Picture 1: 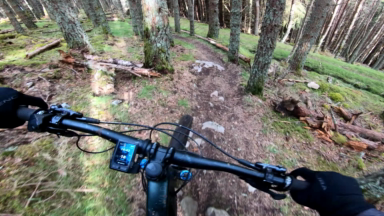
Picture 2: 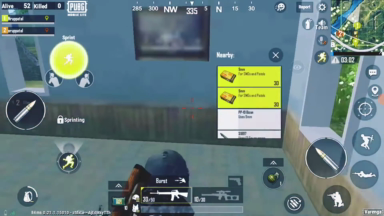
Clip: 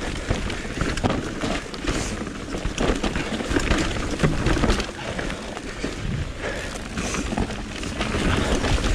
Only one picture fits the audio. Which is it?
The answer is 1